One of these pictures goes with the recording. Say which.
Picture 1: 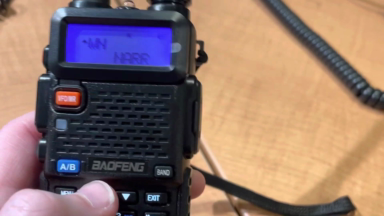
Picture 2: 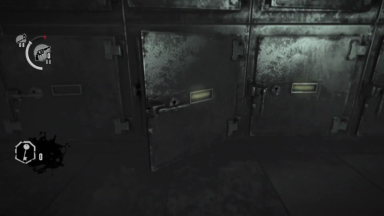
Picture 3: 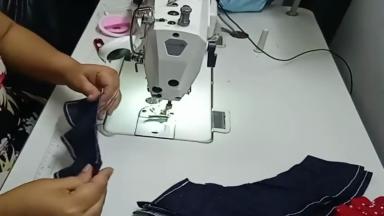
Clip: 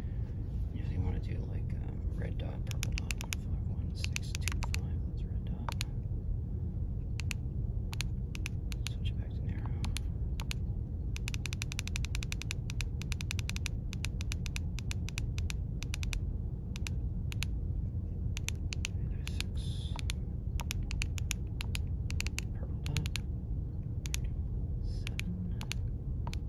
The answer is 1